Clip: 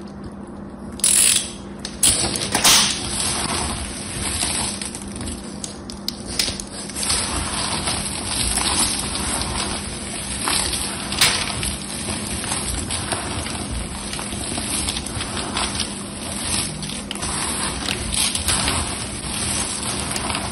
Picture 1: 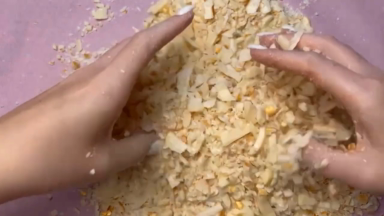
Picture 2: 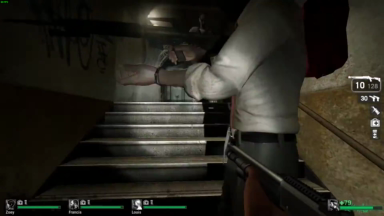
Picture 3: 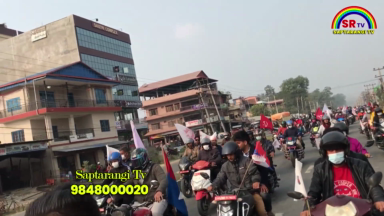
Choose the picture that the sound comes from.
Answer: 1